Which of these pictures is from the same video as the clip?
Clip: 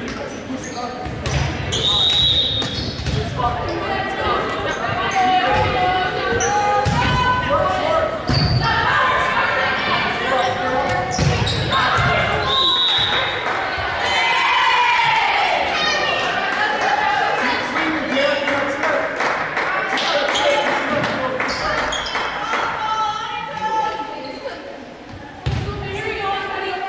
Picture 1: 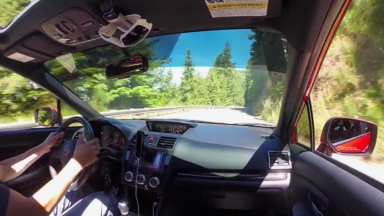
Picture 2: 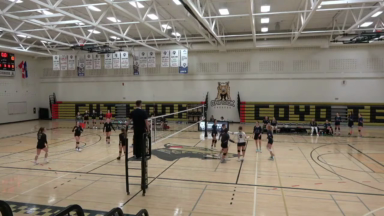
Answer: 2